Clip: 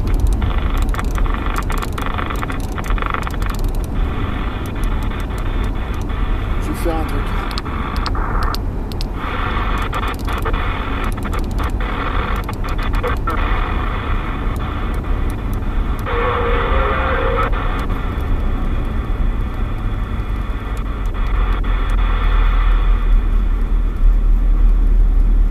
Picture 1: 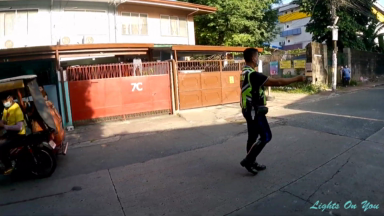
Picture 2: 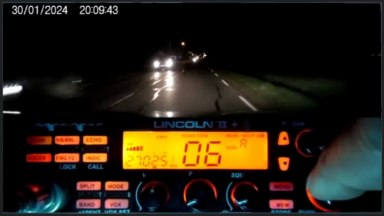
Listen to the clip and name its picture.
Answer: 2